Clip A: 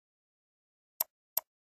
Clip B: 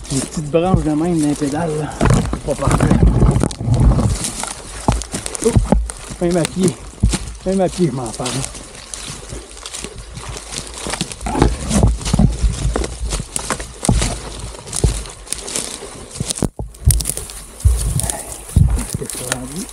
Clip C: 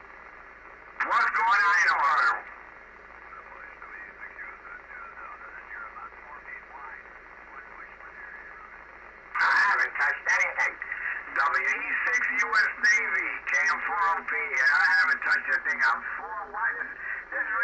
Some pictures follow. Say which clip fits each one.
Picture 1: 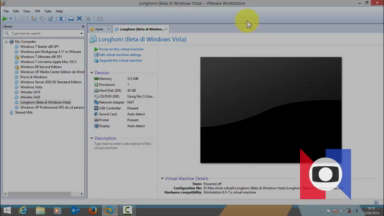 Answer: A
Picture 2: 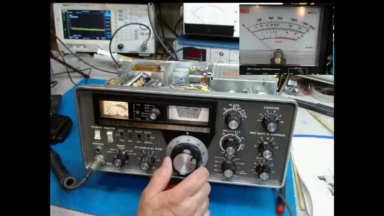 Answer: C